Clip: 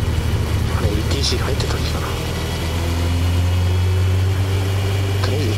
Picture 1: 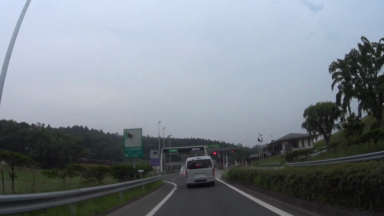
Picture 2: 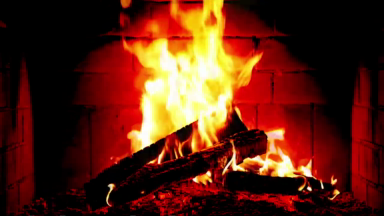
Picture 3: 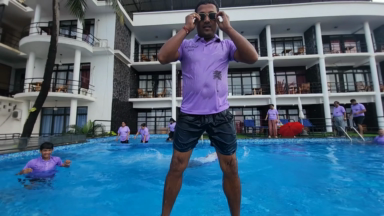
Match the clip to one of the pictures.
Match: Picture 1